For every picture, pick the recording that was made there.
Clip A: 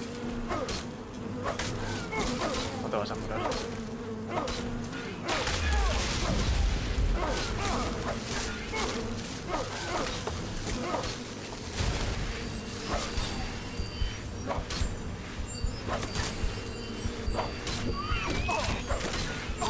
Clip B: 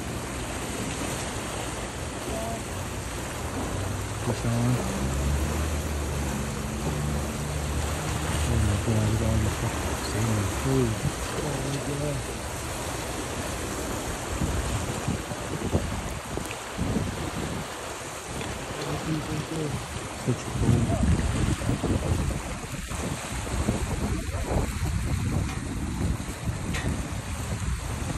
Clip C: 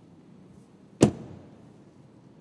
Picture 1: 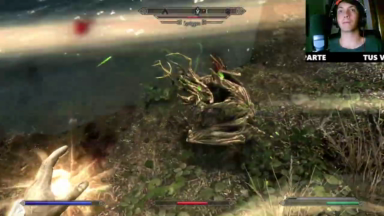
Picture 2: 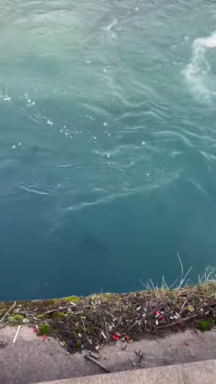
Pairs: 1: A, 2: B